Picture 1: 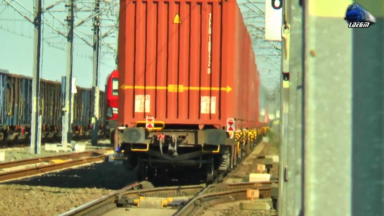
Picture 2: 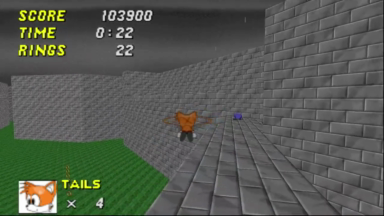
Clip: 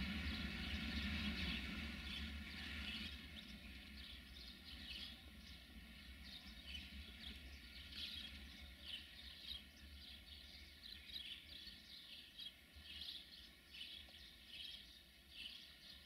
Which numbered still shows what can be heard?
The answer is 1